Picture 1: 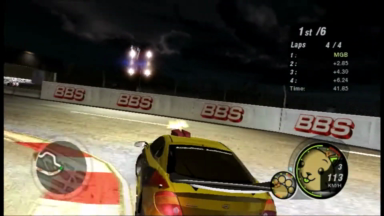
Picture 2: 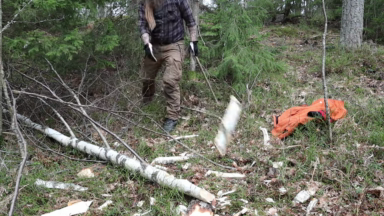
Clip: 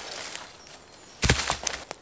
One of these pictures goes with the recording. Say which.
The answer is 2